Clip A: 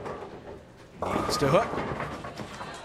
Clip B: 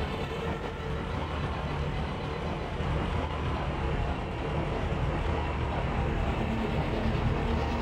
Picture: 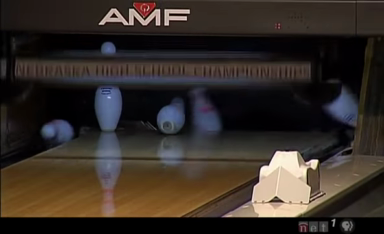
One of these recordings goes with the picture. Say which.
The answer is A